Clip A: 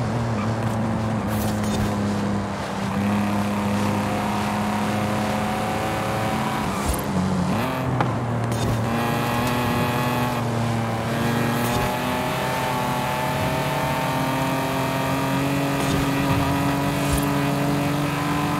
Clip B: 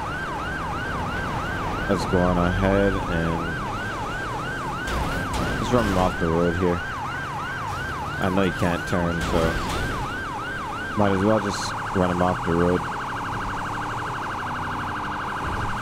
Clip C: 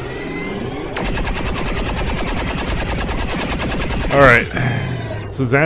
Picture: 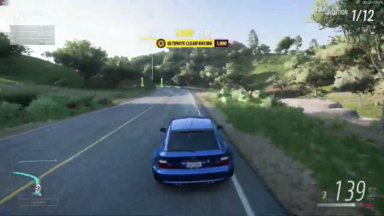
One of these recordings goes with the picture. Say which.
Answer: A